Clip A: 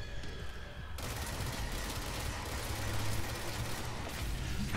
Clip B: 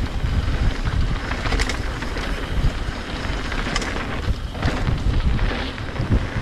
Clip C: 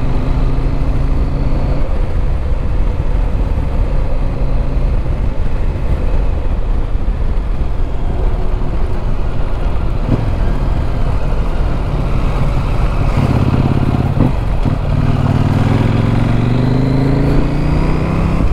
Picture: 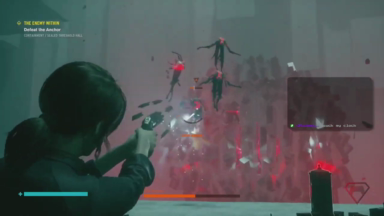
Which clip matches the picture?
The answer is A